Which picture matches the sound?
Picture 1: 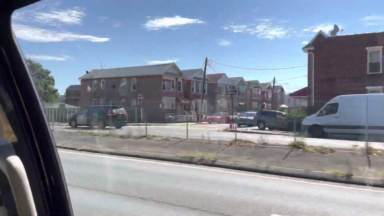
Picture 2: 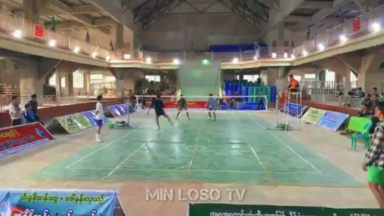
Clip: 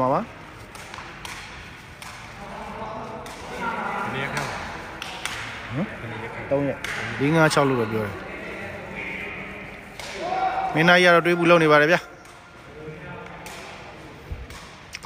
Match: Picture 2